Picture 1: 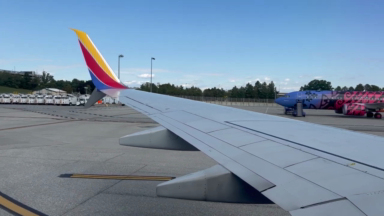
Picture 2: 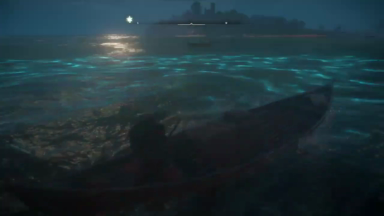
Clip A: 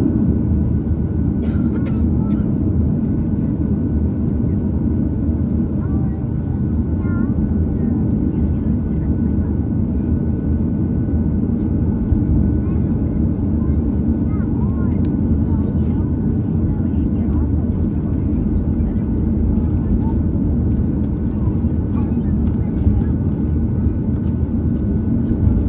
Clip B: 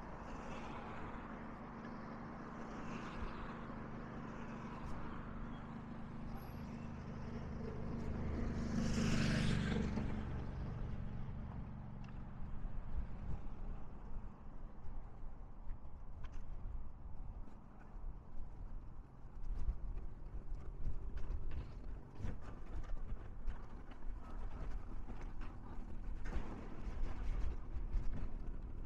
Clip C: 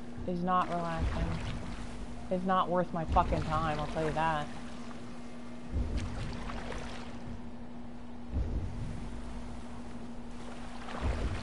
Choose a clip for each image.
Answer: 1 A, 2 C